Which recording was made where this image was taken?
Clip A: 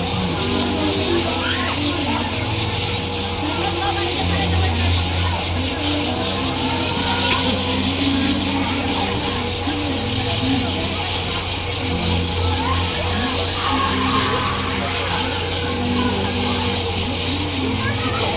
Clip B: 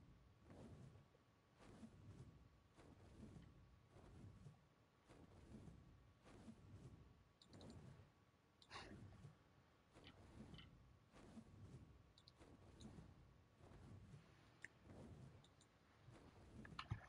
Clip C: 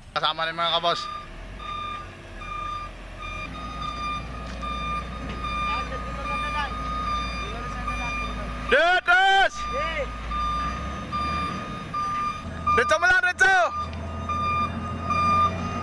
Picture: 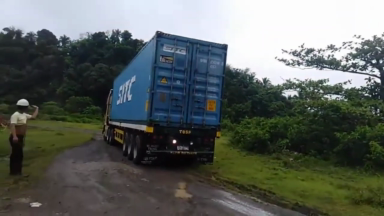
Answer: C